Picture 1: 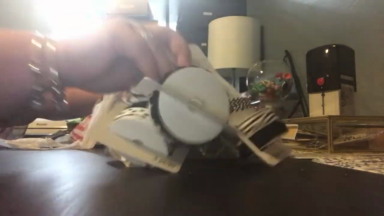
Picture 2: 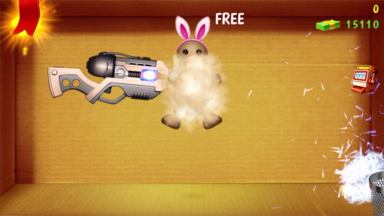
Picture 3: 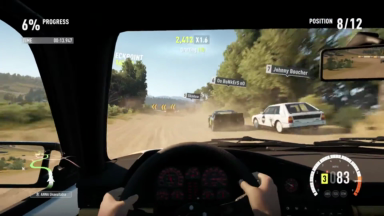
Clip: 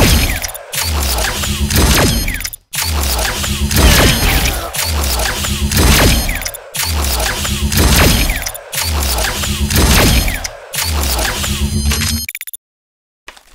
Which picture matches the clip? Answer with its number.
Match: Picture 2